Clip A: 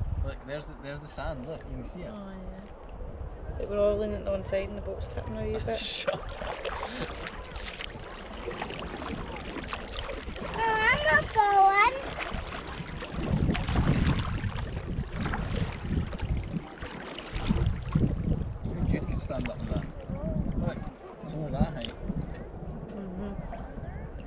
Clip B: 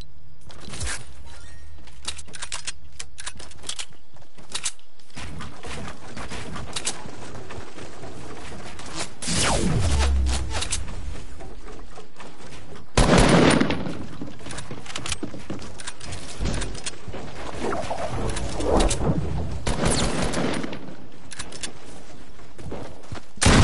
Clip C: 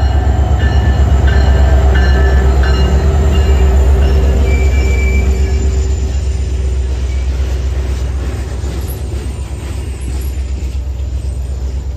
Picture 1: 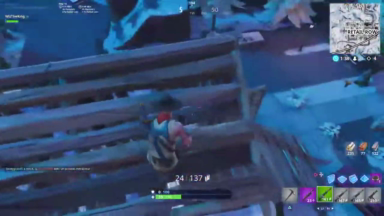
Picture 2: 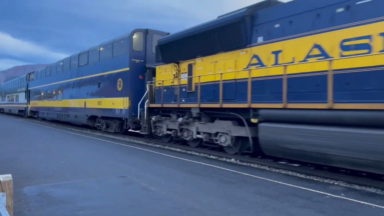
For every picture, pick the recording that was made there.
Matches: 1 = B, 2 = C